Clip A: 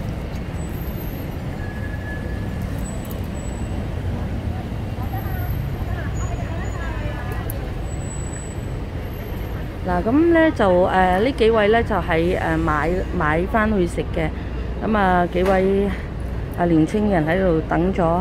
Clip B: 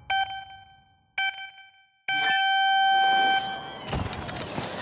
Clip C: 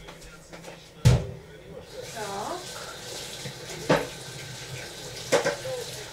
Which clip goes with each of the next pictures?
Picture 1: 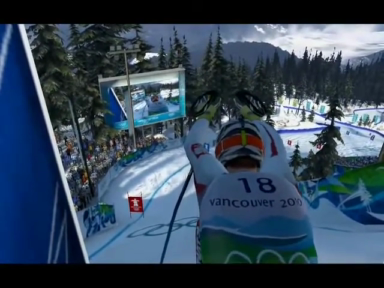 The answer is B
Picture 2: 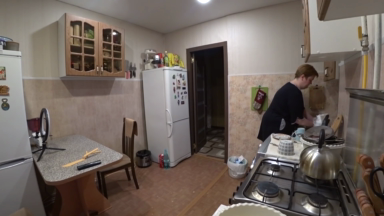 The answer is C